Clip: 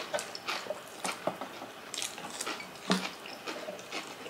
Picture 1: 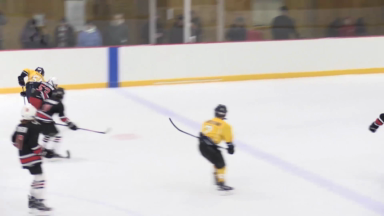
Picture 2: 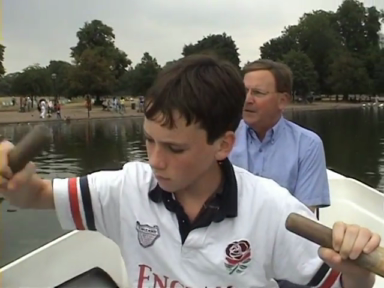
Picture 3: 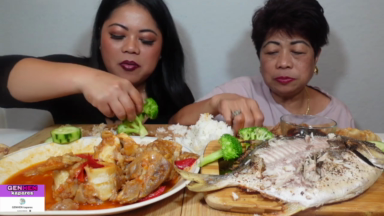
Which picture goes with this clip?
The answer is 3